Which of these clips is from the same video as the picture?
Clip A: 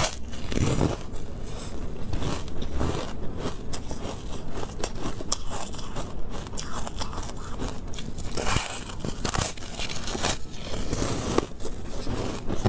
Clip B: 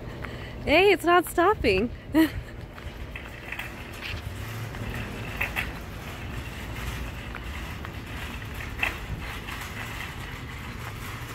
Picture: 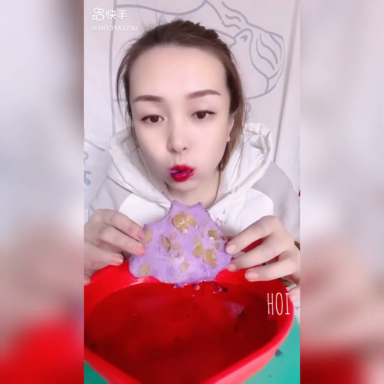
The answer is A